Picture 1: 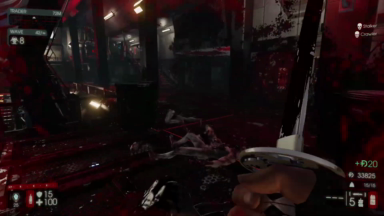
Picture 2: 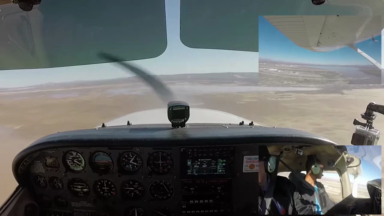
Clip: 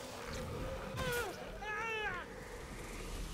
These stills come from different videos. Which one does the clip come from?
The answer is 1